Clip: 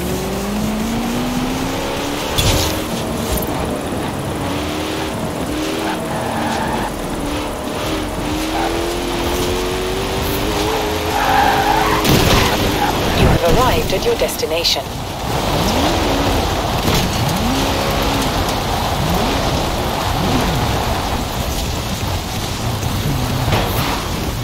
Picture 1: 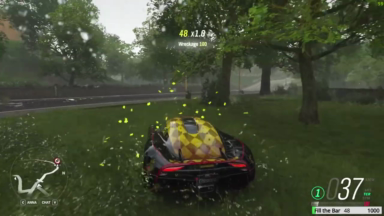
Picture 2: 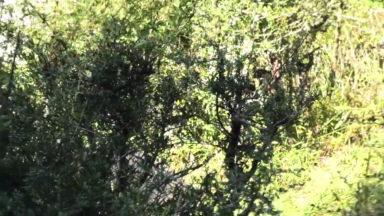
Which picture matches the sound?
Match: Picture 1